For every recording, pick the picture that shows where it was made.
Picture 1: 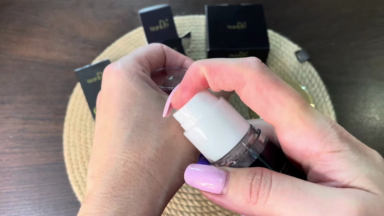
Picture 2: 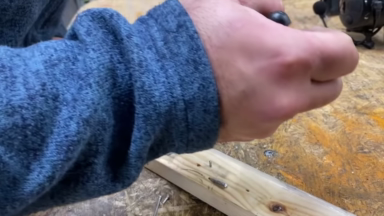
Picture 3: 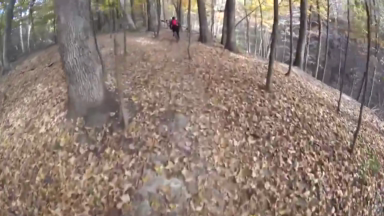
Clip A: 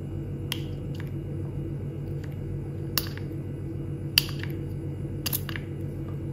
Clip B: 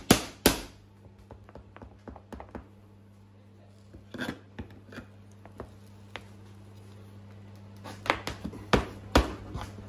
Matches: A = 1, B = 2